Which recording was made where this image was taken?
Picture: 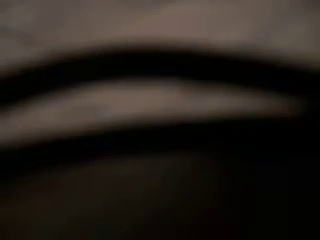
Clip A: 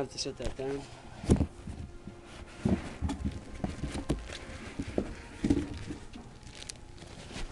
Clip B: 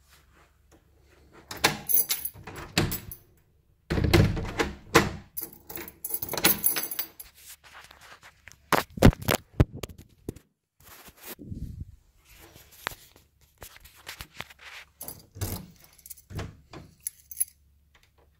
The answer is A